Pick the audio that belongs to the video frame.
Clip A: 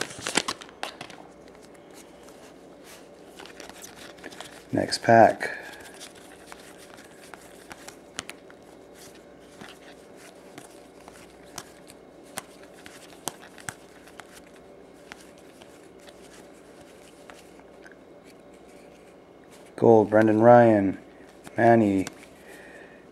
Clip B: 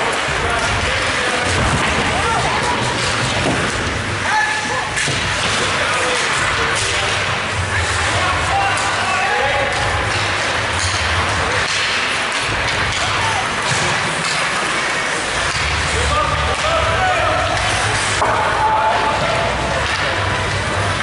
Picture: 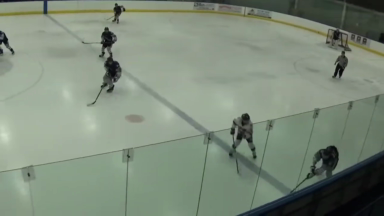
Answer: B